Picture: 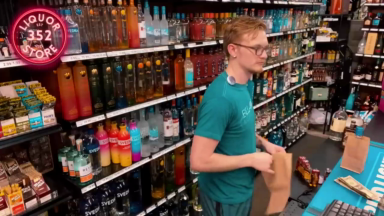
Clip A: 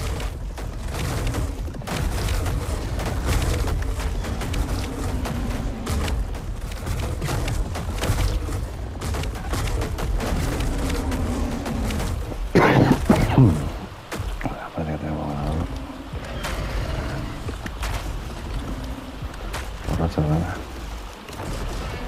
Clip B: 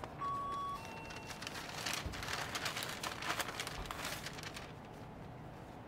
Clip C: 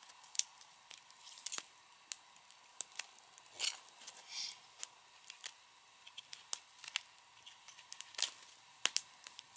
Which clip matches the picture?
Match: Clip B